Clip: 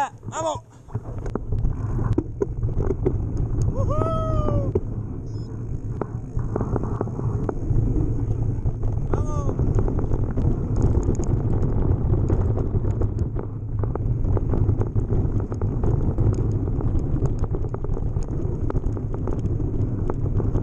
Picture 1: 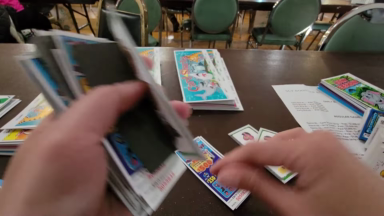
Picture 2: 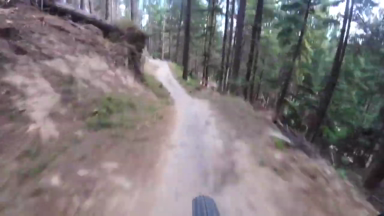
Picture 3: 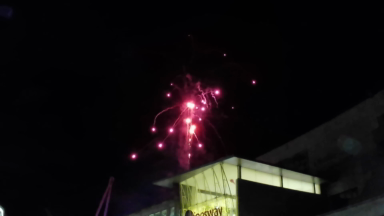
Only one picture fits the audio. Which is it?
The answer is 2